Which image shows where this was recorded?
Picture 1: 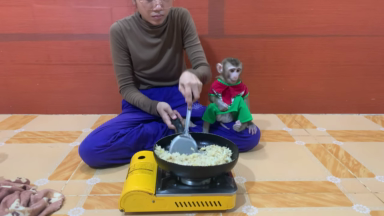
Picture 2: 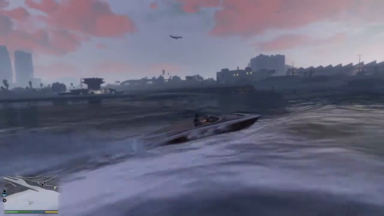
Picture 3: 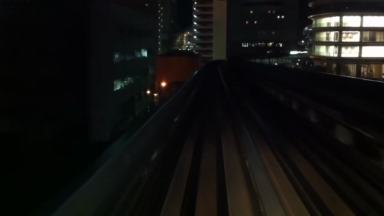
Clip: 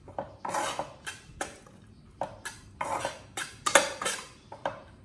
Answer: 1